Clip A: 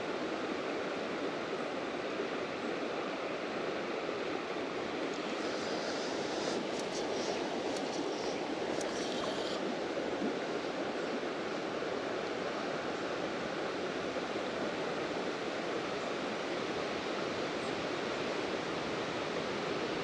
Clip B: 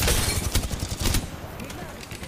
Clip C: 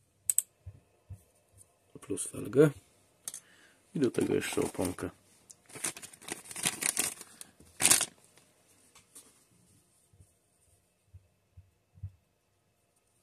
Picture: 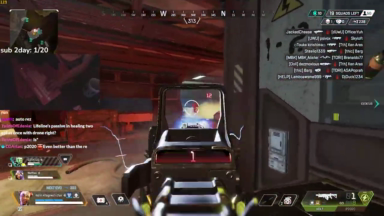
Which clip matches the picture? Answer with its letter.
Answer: B